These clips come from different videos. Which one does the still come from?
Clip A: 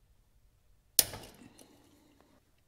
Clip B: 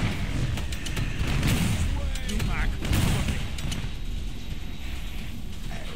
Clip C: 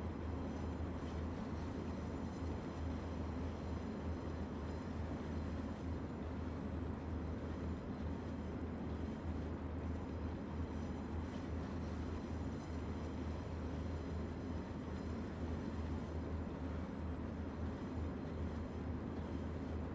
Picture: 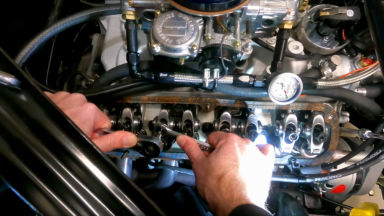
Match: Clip A